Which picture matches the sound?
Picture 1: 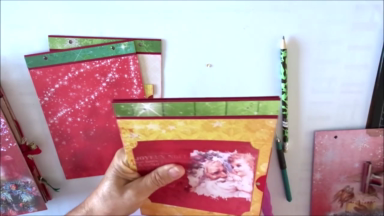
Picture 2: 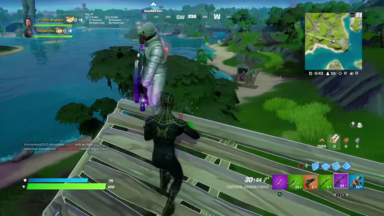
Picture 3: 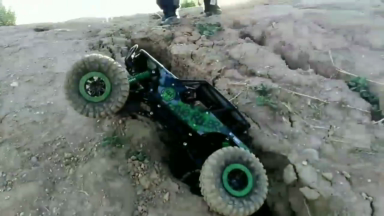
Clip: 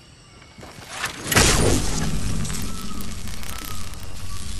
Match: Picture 2